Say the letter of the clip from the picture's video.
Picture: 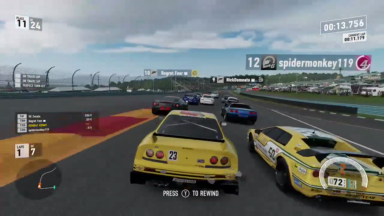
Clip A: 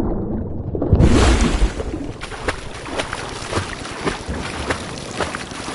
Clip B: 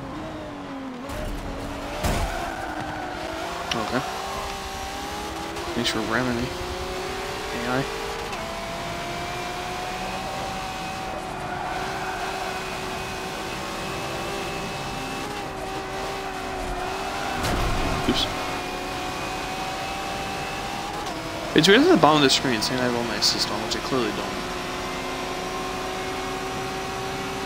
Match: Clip B